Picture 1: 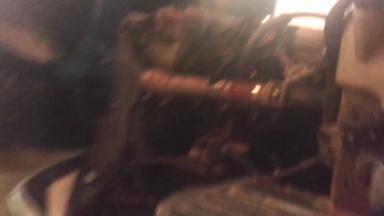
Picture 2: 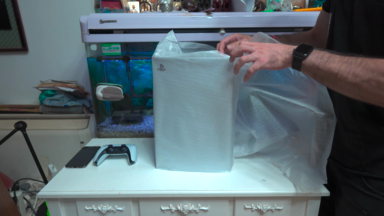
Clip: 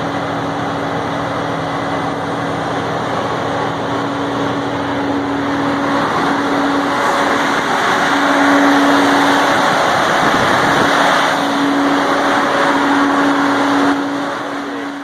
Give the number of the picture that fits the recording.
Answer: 1